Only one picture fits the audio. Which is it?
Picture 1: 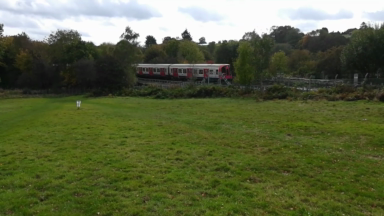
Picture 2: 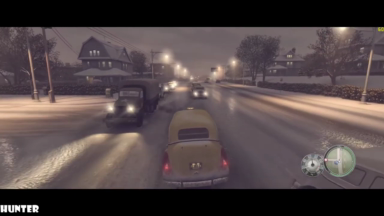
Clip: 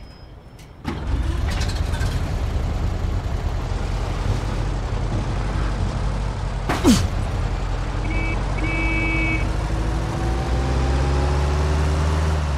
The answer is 2